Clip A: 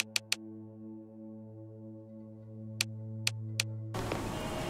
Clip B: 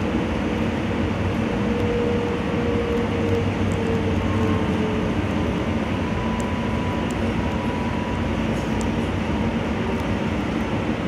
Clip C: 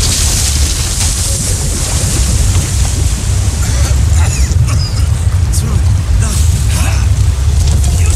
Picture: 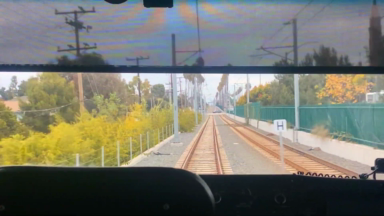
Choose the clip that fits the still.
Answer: B